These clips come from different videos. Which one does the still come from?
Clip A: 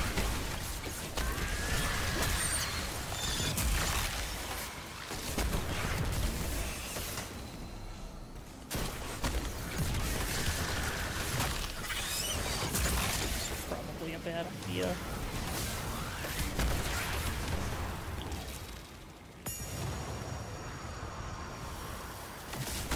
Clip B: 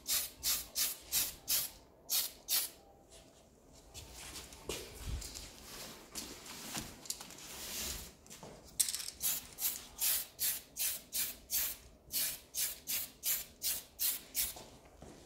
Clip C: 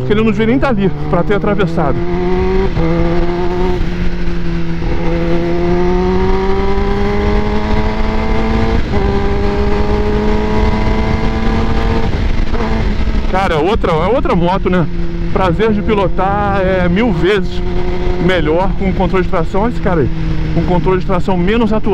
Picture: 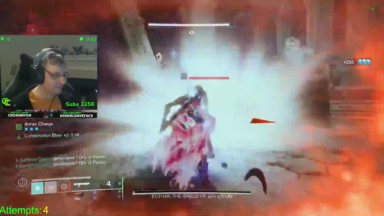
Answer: A